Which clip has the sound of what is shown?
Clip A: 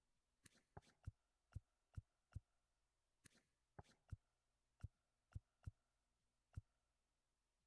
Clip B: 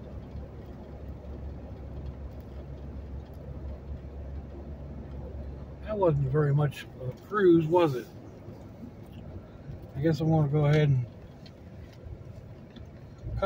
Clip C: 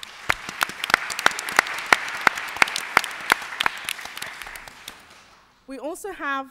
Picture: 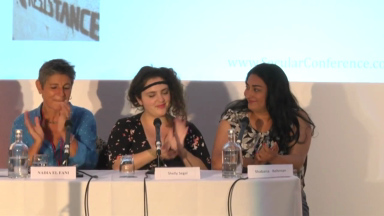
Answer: C